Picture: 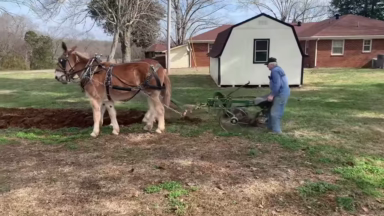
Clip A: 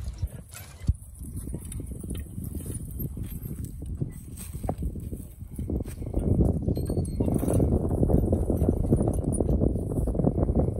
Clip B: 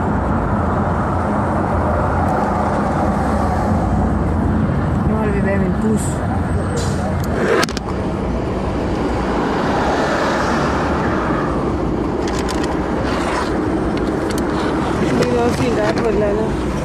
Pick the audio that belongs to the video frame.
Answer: A